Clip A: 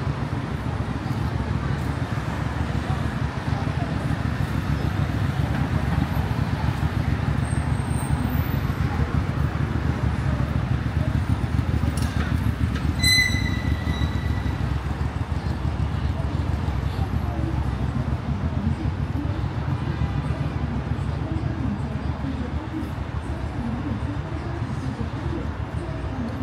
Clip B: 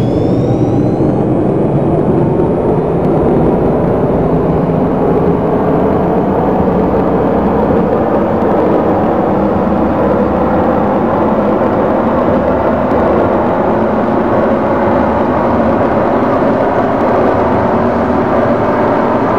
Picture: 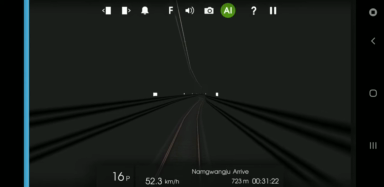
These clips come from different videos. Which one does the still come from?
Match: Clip B